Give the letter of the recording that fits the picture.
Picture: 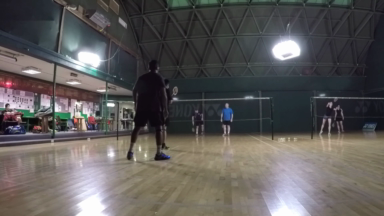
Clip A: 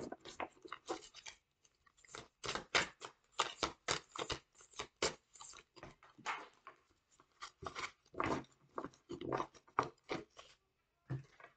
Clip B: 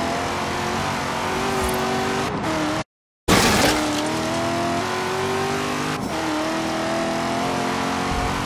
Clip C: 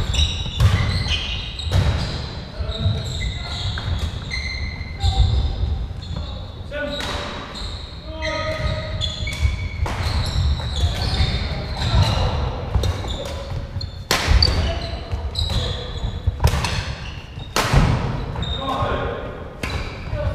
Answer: C